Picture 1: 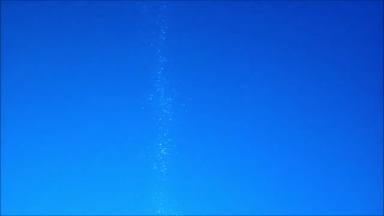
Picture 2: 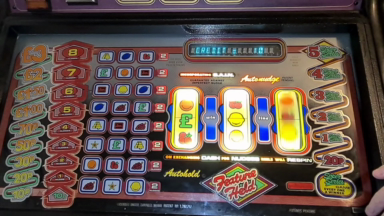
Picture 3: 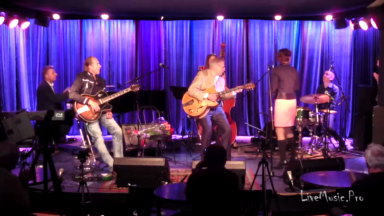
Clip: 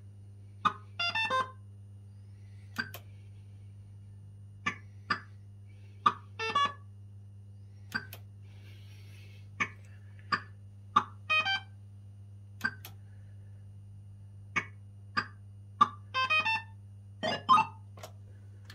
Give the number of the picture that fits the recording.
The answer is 2